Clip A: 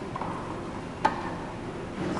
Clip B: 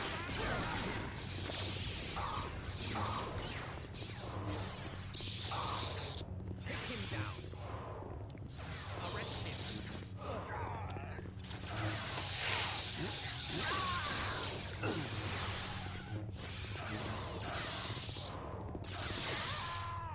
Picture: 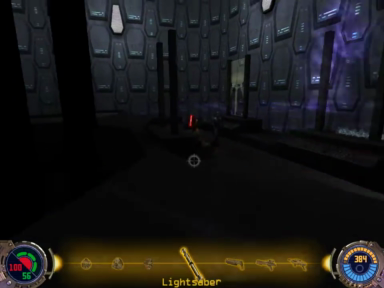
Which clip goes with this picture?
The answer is B